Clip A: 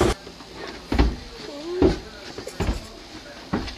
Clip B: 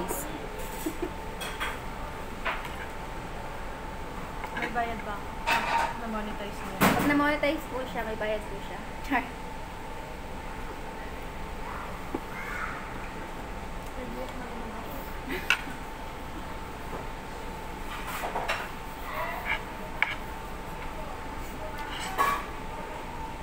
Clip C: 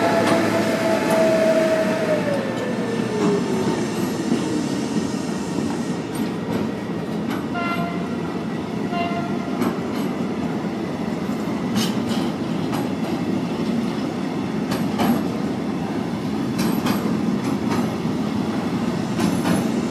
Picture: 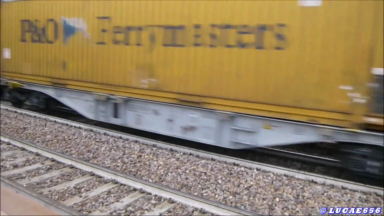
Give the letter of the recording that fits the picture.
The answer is C